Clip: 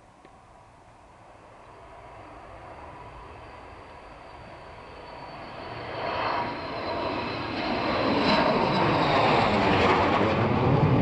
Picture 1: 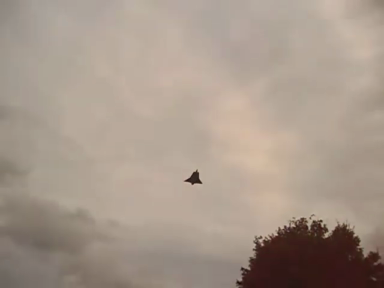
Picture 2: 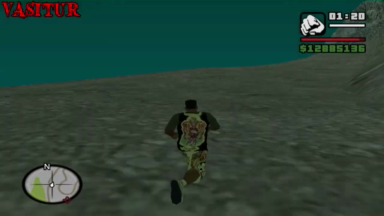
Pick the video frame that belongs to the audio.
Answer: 1